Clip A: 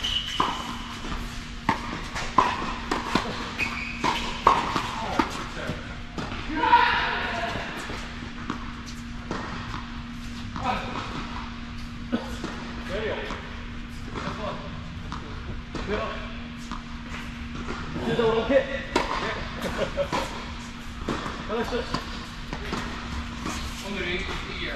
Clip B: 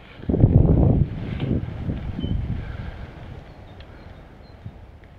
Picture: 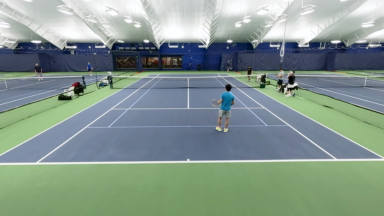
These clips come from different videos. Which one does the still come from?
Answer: A